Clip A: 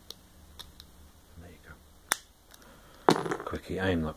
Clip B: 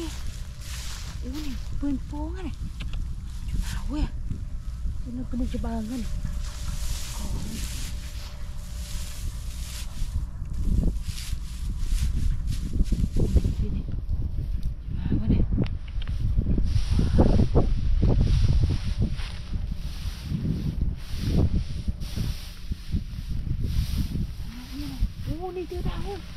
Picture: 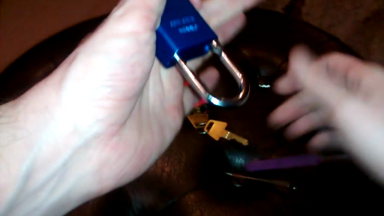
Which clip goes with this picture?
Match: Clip A